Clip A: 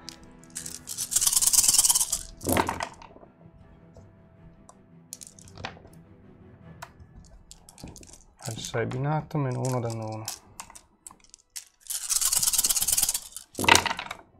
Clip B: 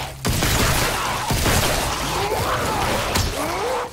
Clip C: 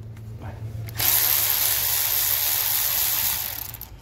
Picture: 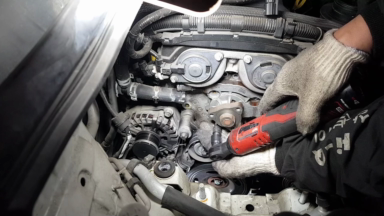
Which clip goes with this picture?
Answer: C